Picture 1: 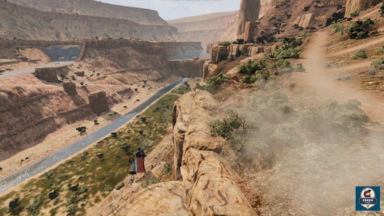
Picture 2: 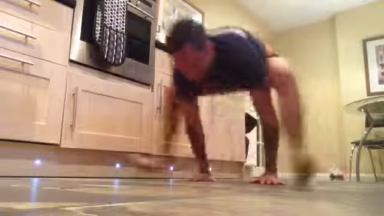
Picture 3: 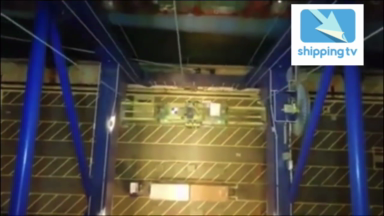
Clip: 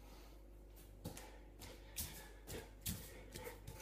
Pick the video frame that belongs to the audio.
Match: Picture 2